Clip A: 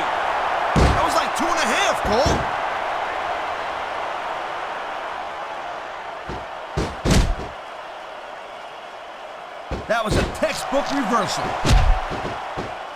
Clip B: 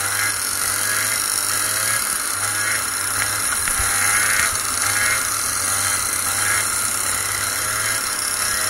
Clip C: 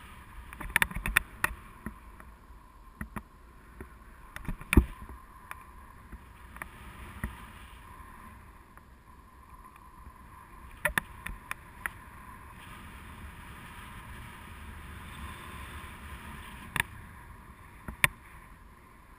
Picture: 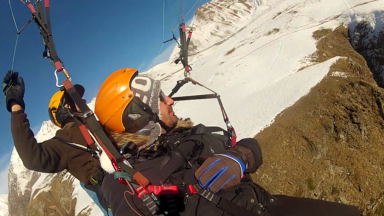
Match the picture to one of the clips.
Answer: C